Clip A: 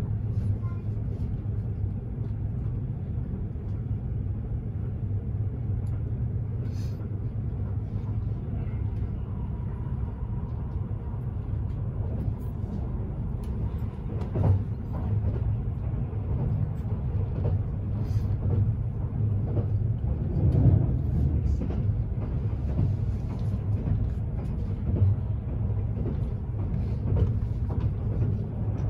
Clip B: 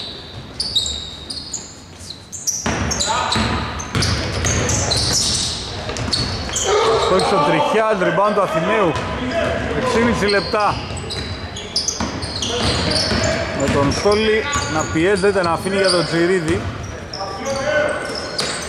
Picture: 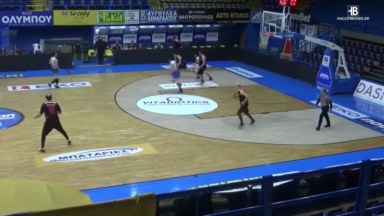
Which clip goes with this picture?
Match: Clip B